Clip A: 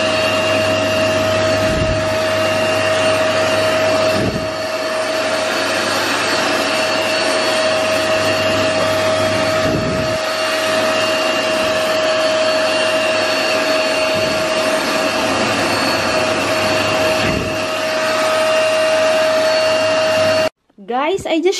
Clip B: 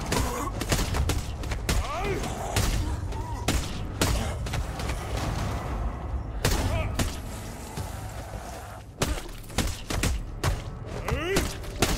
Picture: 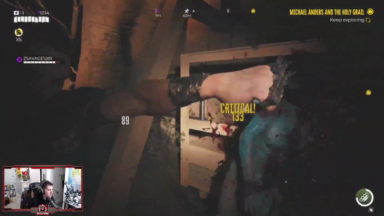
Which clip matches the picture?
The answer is B